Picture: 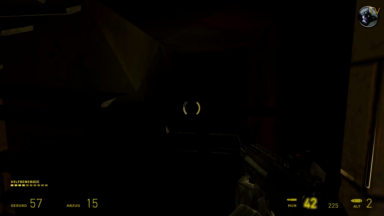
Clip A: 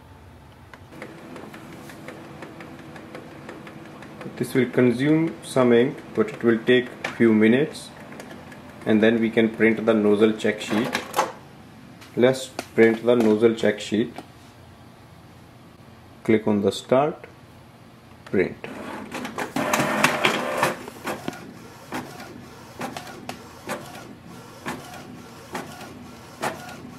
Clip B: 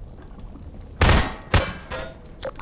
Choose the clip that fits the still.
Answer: B